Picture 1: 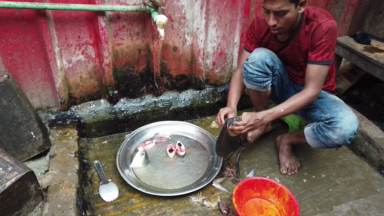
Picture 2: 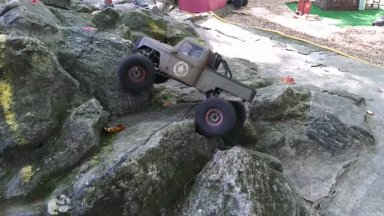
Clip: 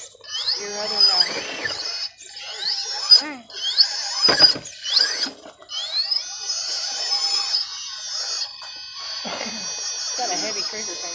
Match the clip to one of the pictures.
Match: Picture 2